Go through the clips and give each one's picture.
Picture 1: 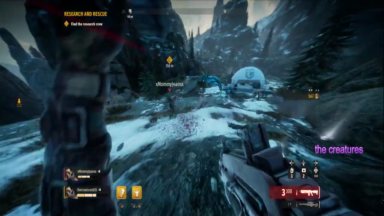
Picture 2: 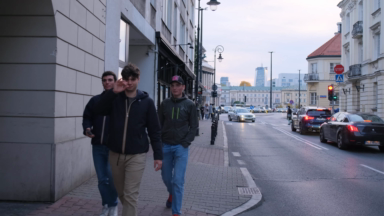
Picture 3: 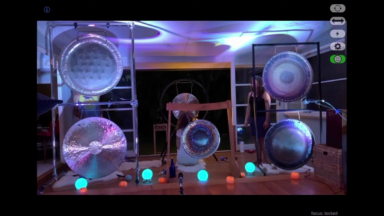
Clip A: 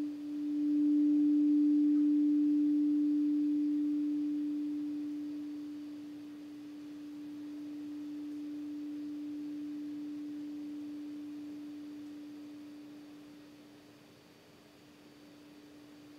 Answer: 3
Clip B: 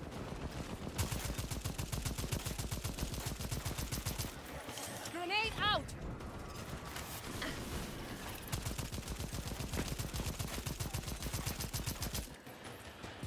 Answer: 1